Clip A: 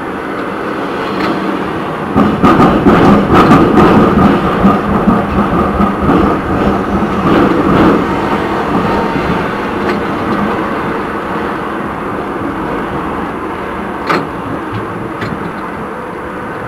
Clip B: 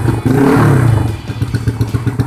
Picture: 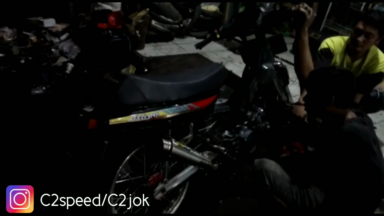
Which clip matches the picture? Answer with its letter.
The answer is B